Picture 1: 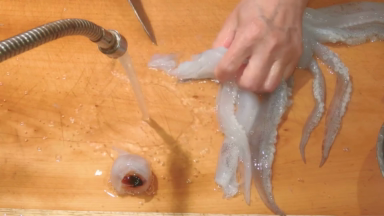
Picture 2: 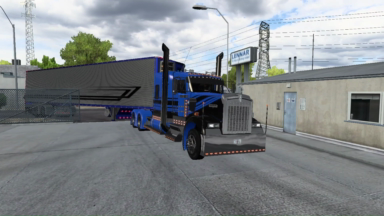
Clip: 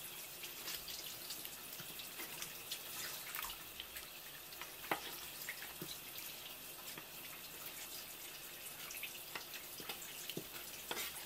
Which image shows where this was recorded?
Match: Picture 1